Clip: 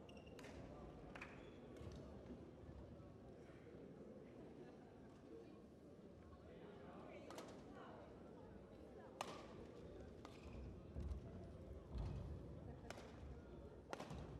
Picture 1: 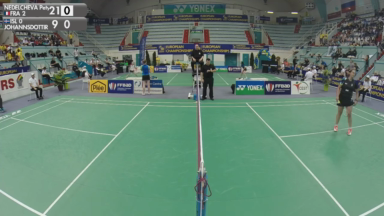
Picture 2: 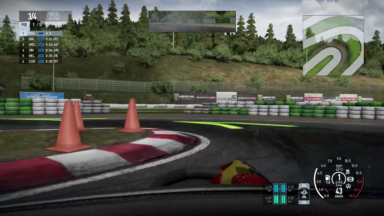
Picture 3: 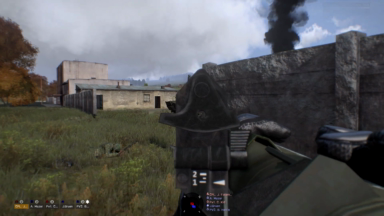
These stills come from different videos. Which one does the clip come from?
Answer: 1